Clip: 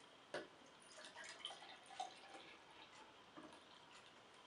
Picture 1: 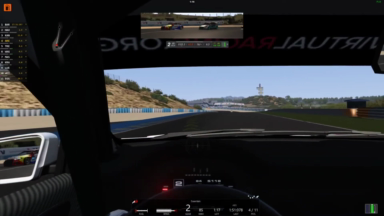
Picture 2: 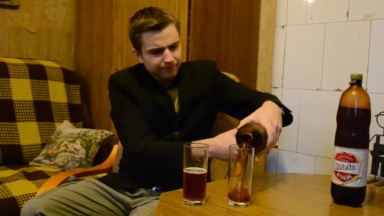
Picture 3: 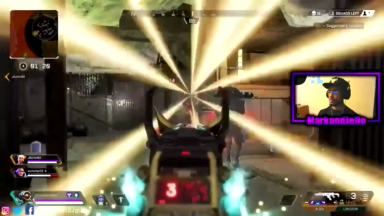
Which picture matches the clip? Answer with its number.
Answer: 2